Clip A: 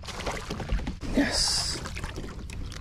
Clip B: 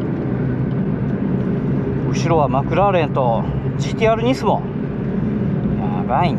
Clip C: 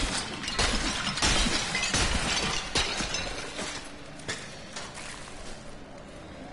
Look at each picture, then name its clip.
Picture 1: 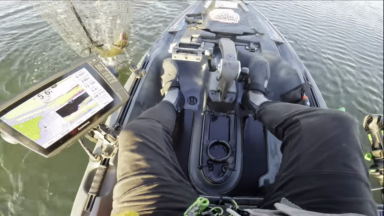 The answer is A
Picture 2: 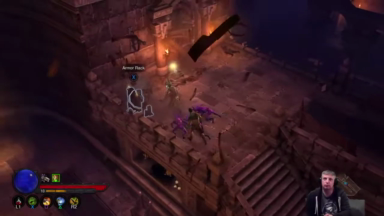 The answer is C